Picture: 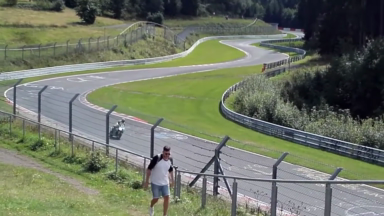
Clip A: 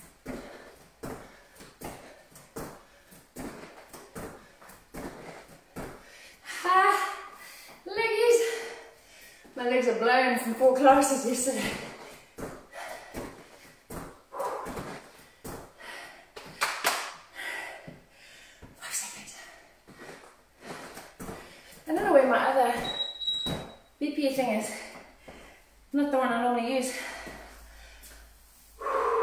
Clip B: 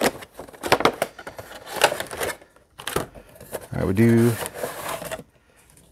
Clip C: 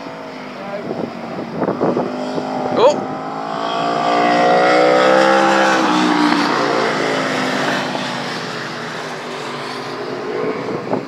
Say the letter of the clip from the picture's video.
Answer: C